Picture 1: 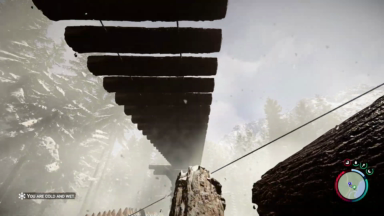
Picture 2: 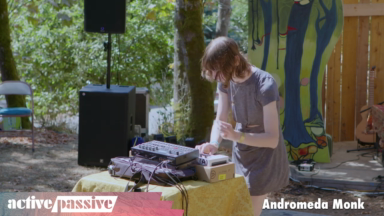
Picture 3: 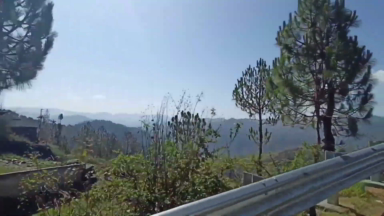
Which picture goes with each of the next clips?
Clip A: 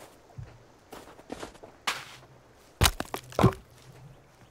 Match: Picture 1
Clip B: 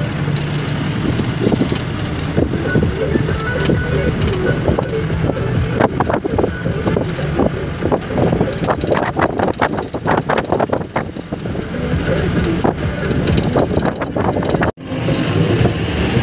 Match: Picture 3